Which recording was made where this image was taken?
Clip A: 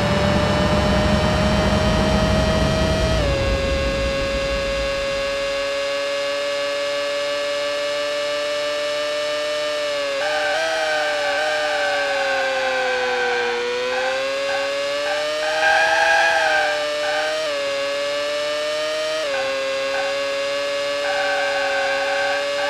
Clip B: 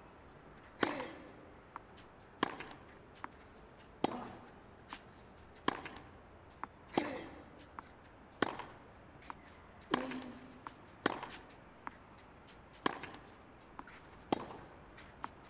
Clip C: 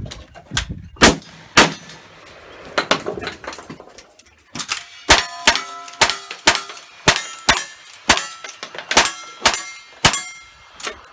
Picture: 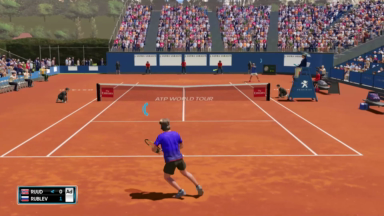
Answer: B